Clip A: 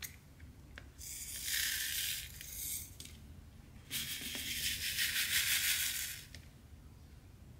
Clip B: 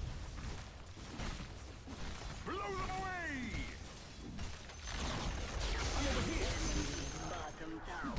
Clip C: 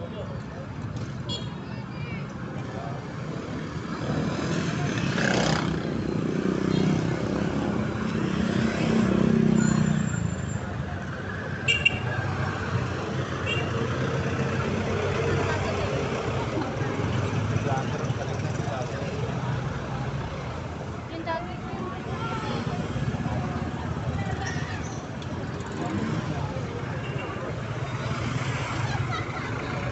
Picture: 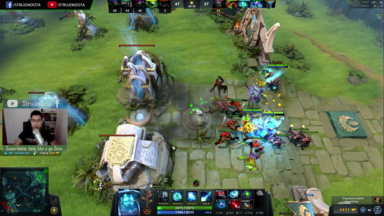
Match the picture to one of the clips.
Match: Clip B